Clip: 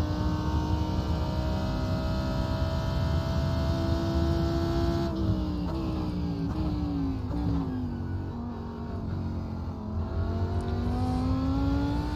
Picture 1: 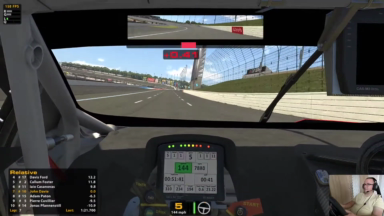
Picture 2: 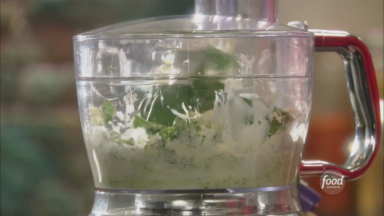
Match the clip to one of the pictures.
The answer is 1